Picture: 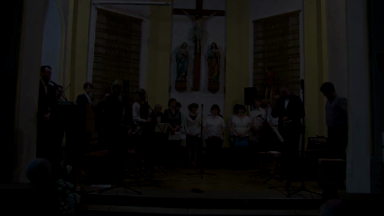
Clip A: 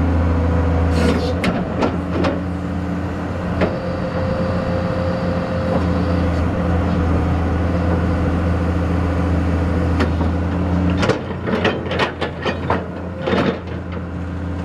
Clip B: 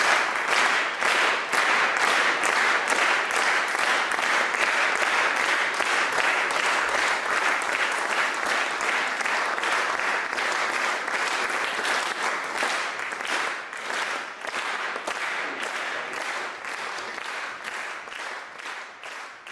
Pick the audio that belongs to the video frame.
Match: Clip B